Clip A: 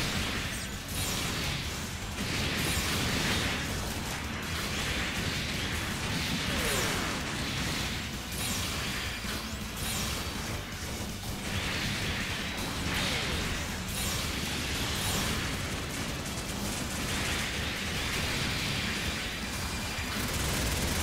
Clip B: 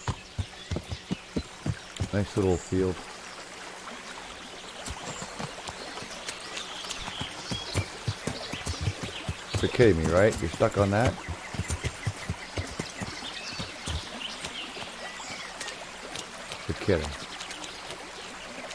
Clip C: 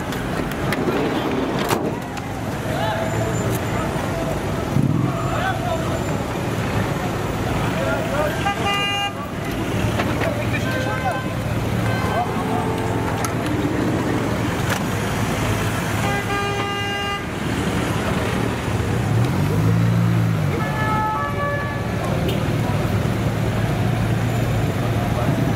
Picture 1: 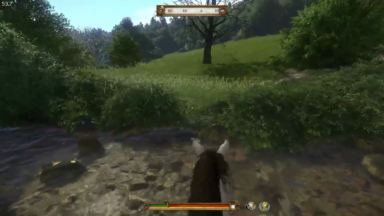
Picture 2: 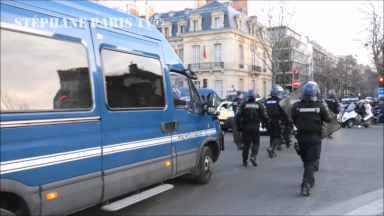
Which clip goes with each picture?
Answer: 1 B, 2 C